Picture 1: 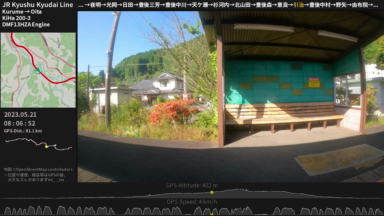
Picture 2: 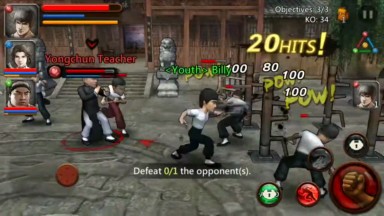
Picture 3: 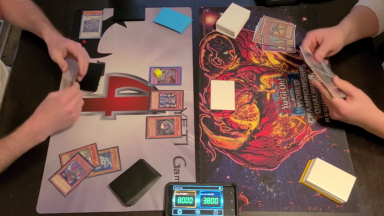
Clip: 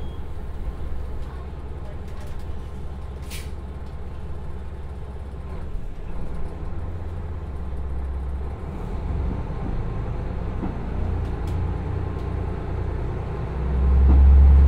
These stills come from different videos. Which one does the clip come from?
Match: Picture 1